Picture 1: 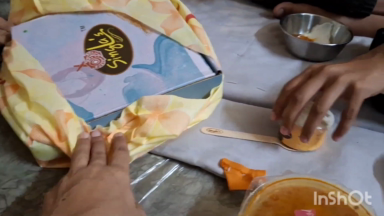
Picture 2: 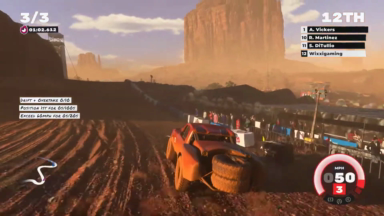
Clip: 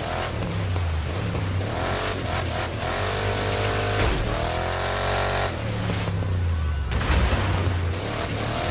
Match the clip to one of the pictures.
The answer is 2